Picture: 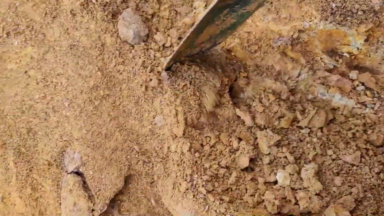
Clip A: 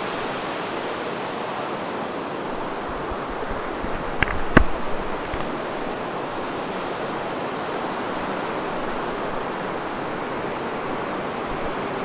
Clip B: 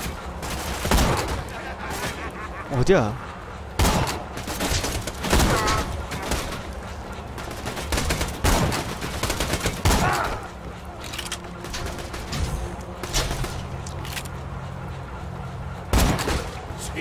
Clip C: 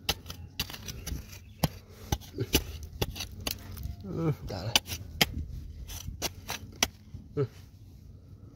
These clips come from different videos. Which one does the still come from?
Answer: C